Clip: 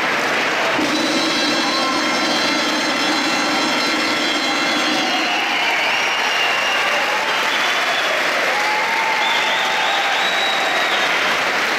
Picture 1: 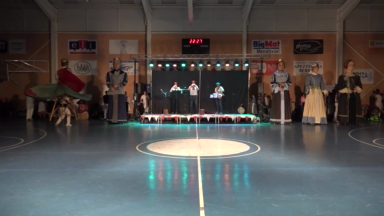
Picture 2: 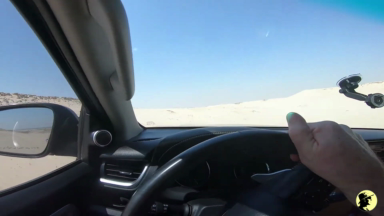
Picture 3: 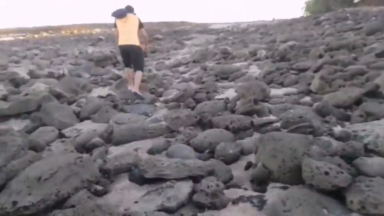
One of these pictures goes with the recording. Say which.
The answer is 1